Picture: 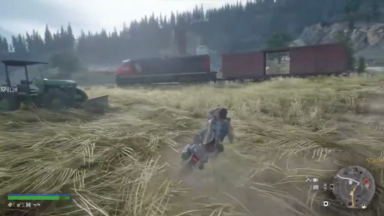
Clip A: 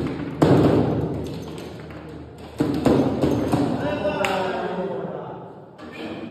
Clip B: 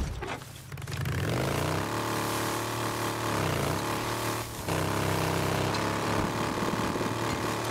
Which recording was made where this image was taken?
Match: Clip B